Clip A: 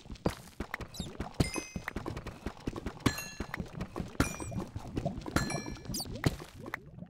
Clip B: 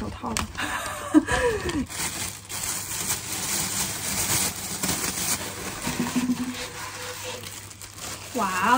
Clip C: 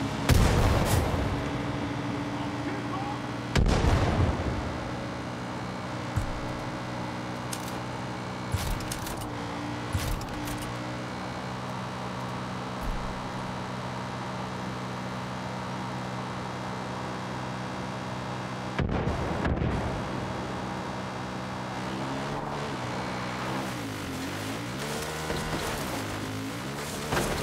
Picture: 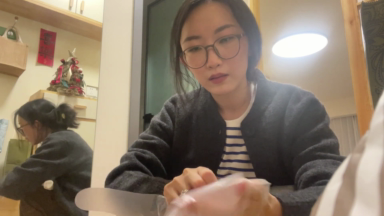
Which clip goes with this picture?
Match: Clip B